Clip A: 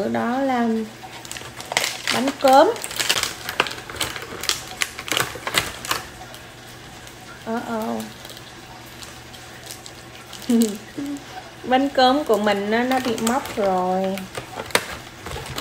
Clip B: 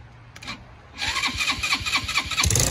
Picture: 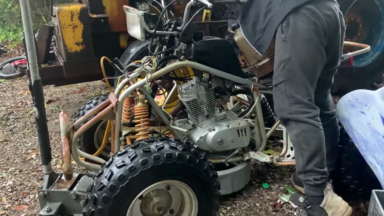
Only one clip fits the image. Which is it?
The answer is B